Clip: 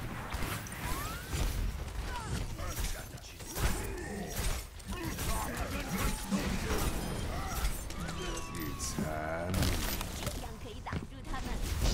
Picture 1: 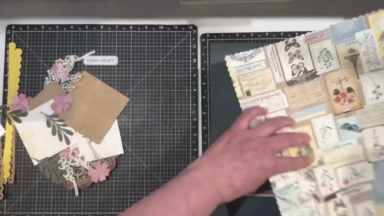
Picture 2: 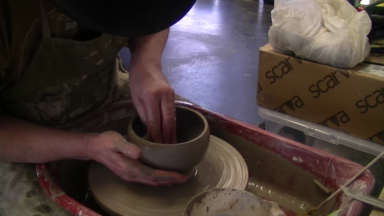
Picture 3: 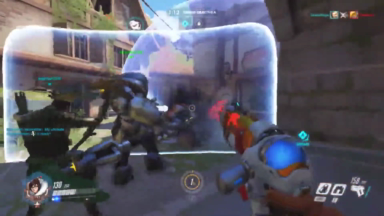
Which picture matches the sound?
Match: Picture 3